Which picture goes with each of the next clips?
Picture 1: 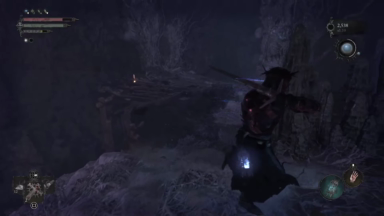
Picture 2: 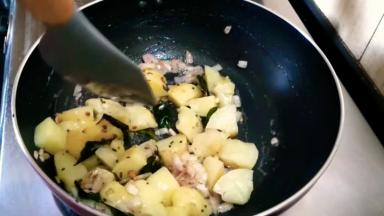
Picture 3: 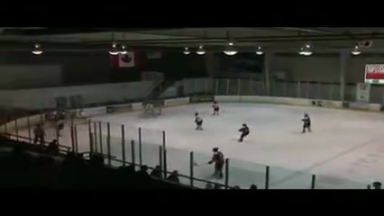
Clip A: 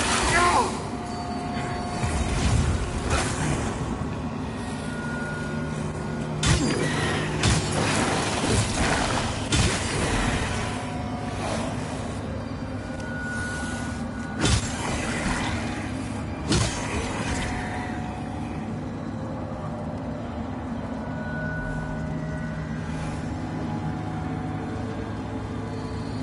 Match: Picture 1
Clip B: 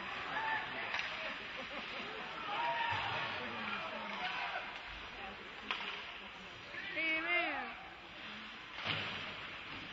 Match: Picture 3